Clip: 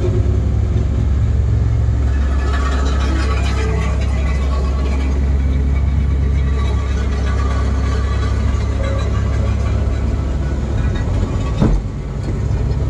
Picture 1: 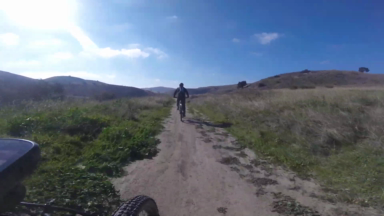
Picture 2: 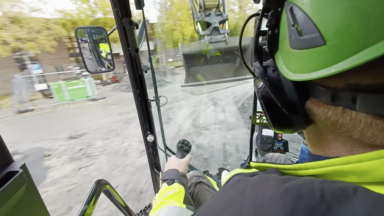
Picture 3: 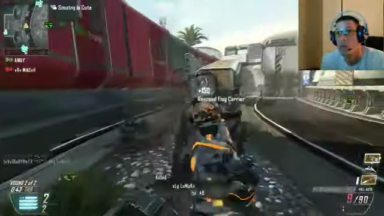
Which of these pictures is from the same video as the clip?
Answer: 2